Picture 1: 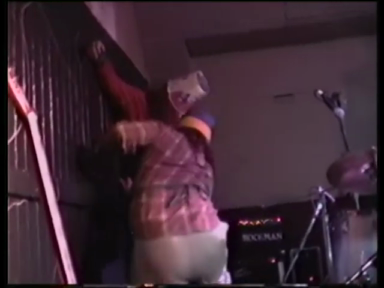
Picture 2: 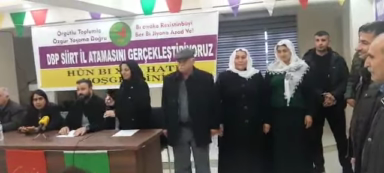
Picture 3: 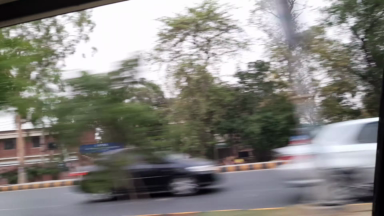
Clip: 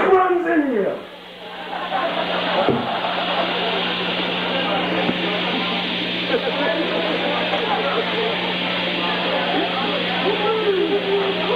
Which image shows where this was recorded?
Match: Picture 1